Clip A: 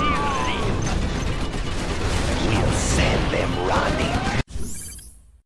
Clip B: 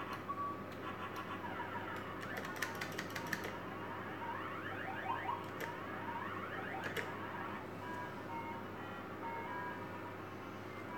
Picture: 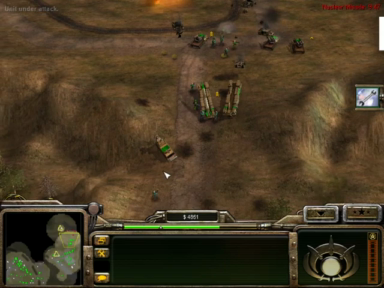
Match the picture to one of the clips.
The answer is A